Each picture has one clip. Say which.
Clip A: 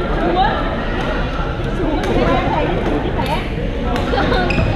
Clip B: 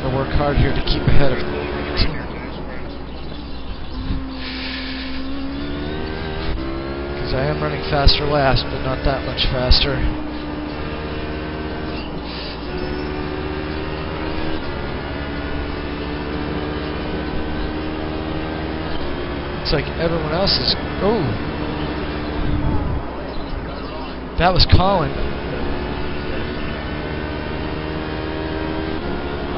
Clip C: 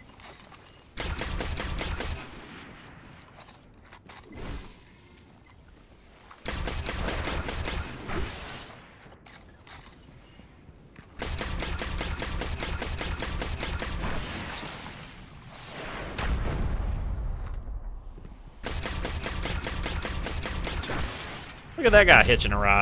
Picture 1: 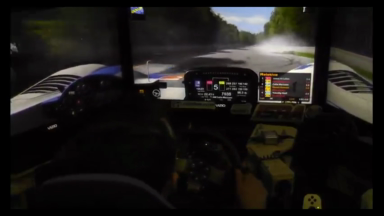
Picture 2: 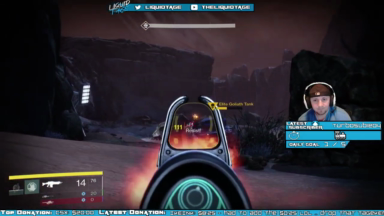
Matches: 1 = B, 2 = C